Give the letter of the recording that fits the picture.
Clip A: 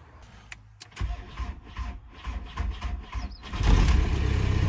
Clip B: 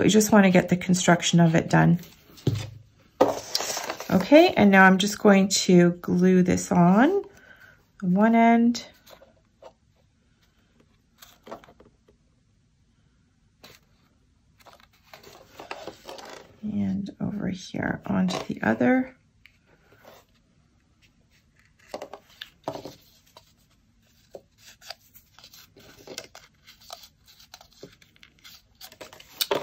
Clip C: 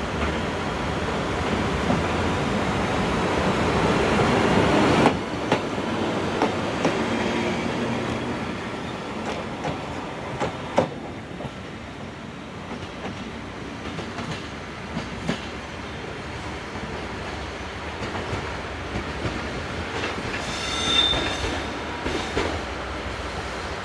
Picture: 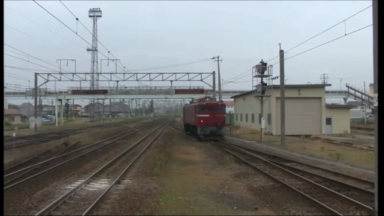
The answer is C